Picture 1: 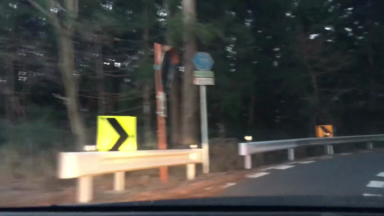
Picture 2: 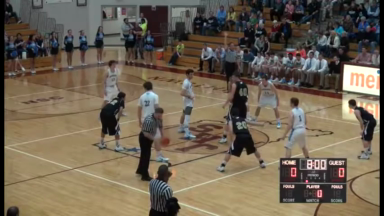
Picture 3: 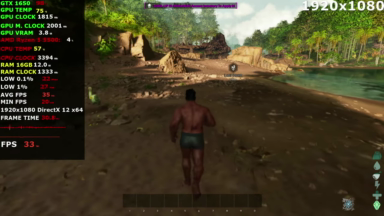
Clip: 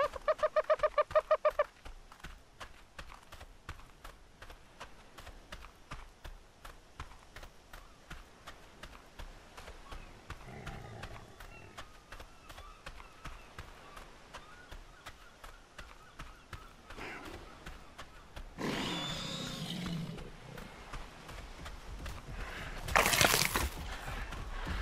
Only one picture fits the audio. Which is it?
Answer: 3